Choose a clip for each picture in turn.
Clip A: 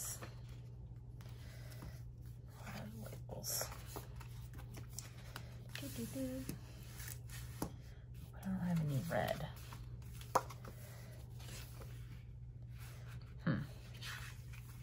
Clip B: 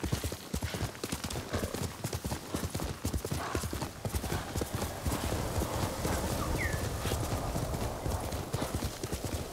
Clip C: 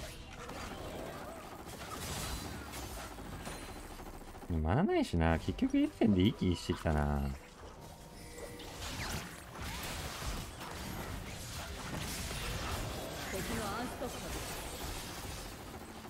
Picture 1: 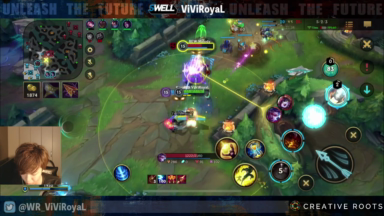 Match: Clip C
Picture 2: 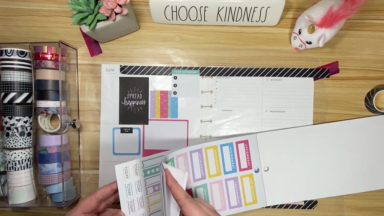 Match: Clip A